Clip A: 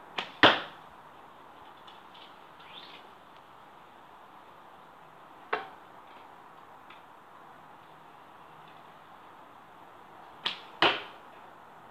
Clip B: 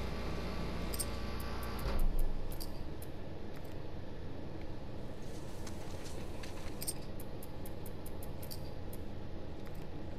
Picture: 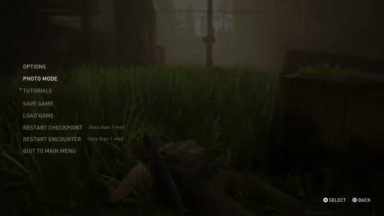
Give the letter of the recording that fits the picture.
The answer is B